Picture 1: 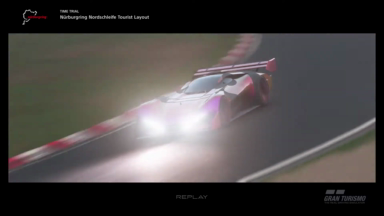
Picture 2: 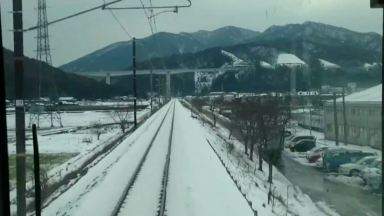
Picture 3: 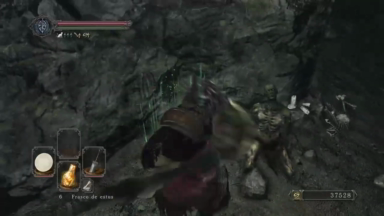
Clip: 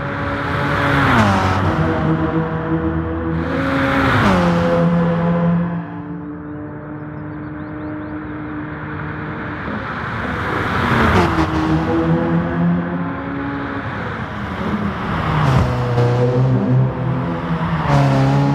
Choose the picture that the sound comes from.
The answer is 1